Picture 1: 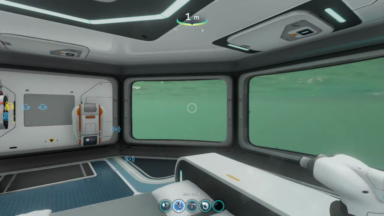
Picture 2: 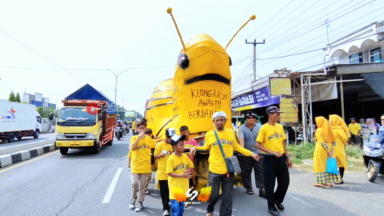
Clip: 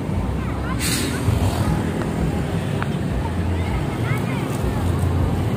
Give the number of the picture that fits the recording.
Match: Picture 2